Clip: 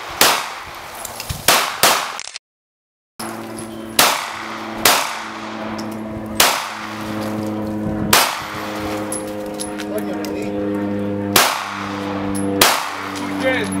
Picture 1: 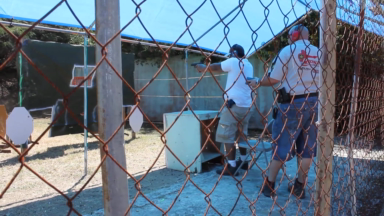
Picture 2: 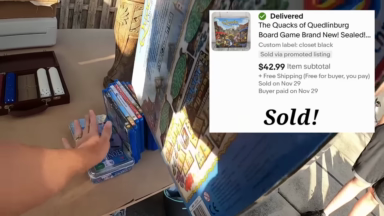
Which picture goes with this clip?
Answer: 1